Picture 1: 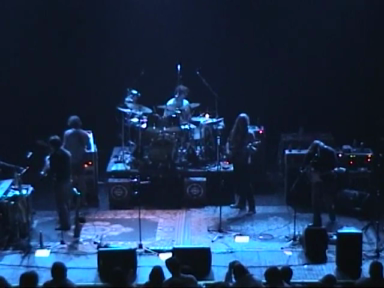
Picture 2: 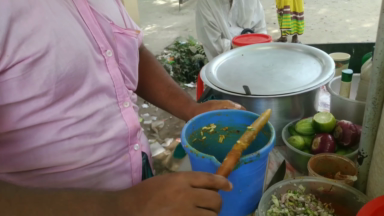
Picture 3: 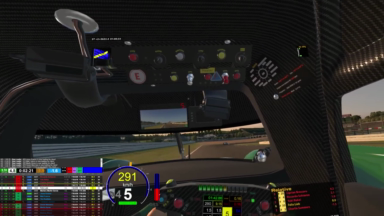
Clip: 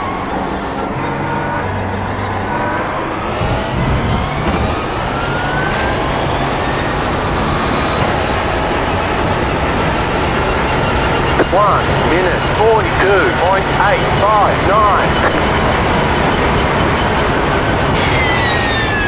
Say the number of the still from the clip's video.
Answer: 3